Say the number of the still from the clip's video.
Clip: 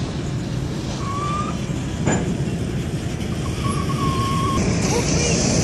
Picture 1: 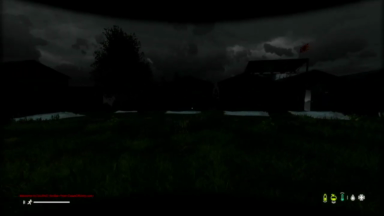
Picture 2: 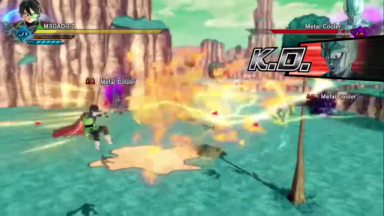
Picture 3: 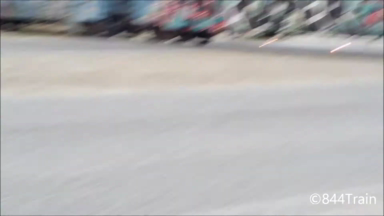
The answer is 3